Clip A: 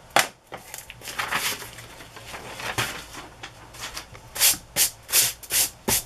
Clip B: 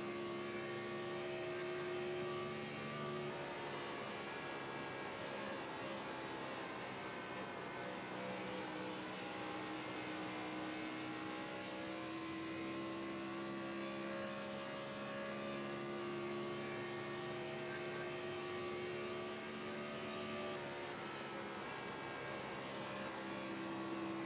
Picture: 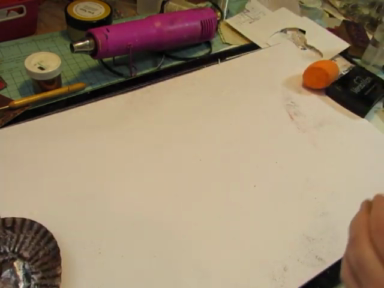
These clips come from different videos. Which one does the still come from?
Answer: A